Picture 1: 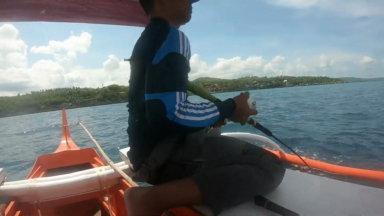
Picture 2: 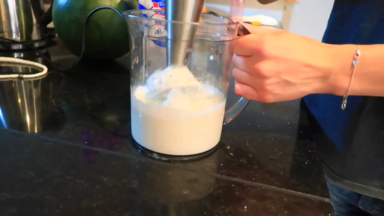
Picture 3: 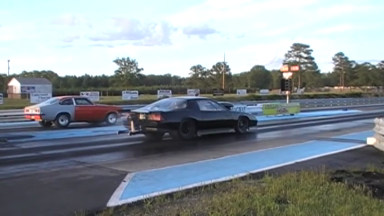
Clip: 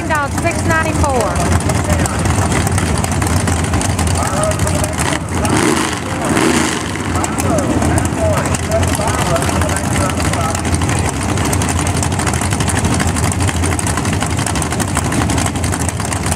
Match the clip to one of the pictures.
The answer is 3